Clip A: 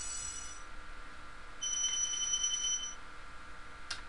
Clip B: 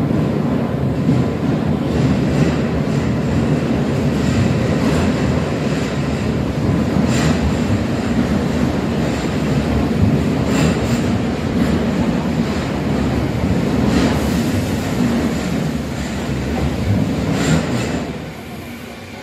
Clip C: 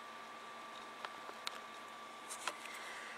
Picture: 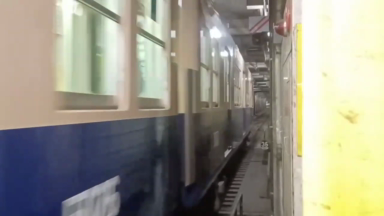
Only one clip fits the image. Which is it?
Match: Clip B